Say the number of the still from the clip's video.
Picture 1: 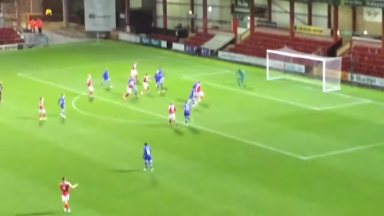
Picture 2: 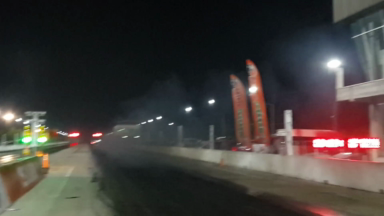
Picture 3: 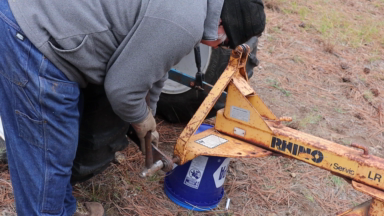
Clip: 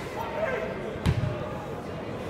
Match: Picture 1